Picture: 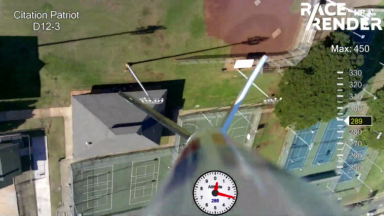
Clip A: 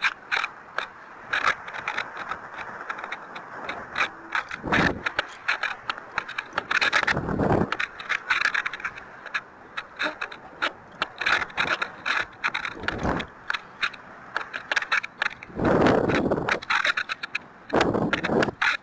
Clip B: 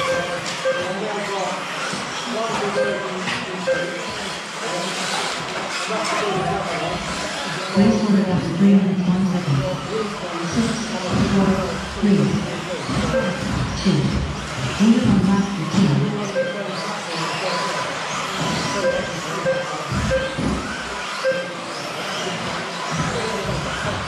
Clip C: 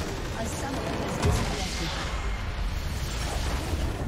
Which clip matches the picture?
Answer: A